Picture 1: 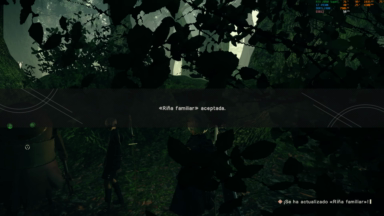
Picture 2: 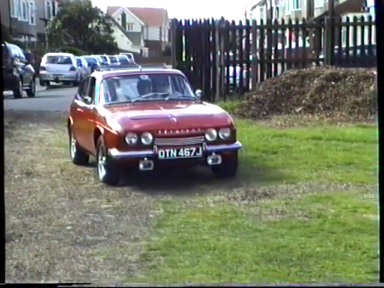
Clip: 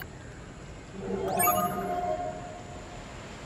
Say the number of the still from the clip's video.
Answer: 1